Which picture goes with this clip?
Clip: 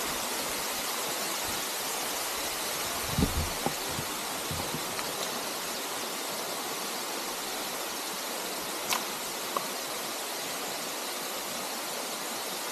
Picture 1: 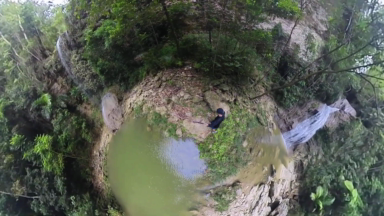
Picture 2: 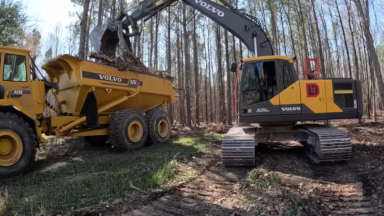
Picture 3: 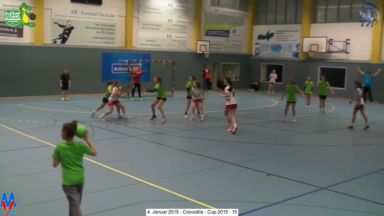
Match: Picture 1